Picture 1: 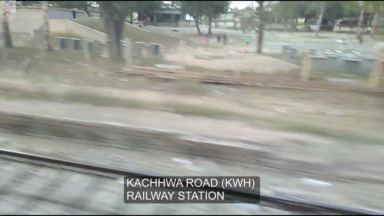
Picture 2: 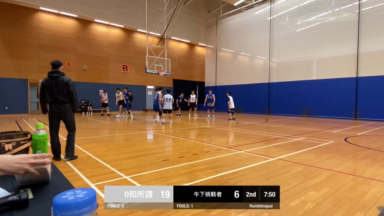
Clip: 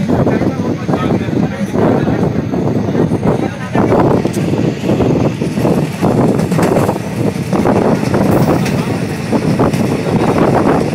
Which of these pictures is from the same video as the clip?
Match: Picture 1